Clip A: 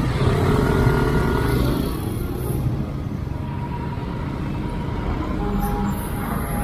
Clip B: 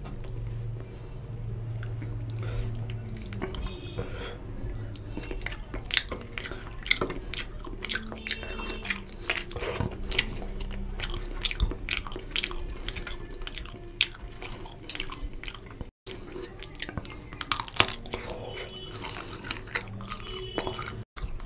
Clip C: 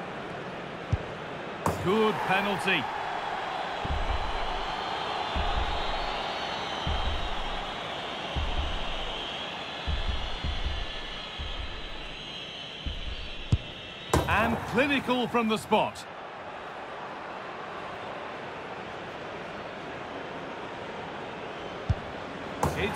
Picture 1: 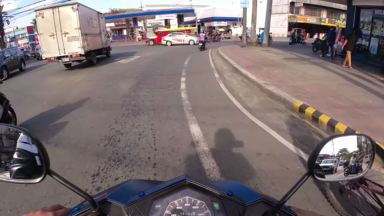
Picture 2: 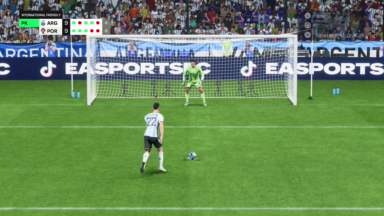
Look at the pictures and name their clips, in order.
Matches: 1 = A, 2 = C